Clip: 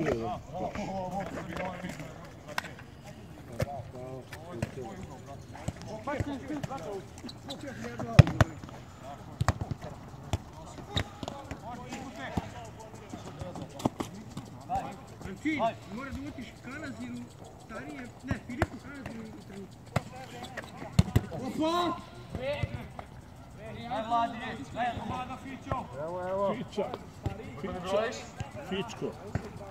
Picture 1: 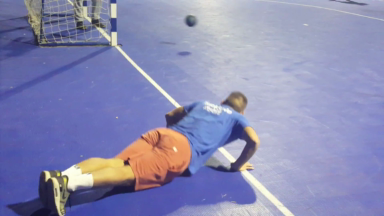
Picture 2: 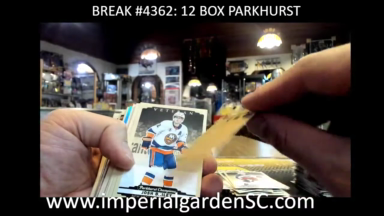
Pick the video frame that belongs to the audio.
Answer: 1